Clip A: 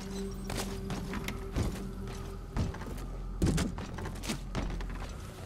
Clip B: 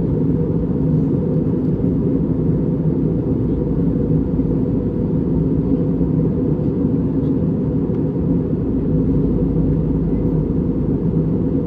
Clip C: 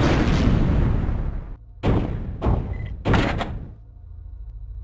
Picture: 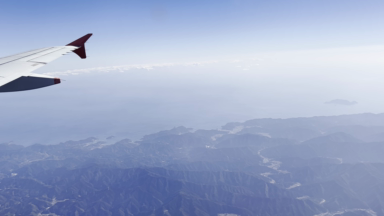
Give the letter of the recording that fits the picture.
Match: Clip B